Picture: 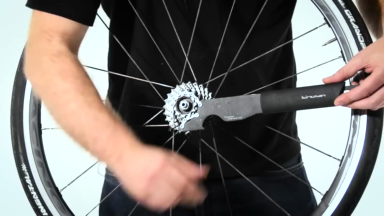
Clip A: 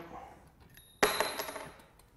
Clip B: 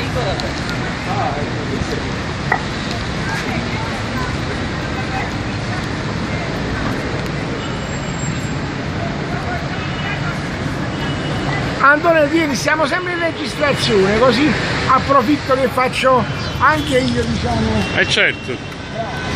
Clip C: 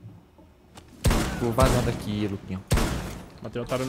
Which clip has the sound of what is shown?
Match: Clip A